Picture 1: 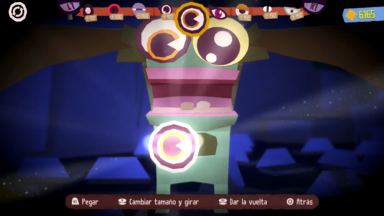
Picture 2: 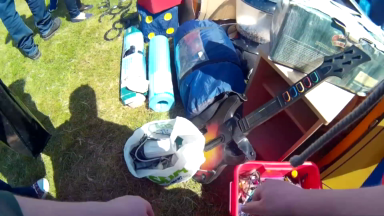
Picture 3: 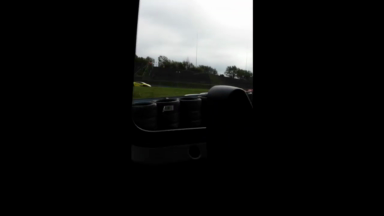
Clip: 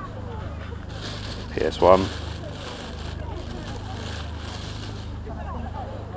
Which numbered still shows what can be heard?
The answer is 2